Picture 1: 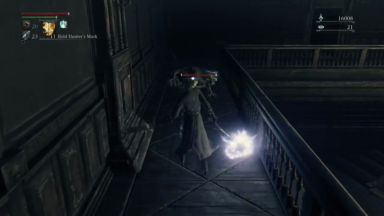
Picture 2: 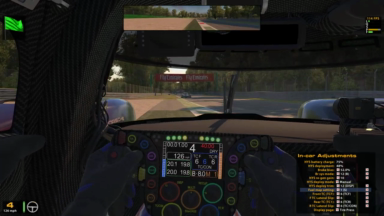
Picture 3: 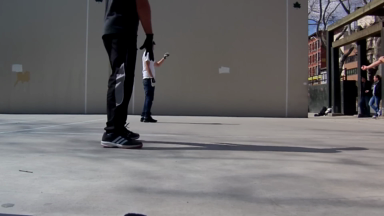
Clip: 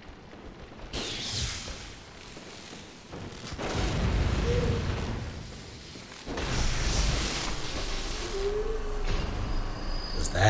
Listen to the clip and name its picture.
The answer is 1